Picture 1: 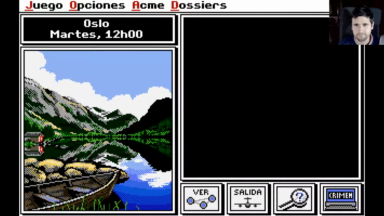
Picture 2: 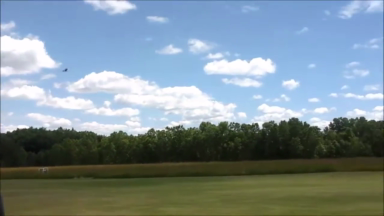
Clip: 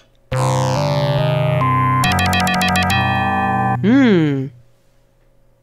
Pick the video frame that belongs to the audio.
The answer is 1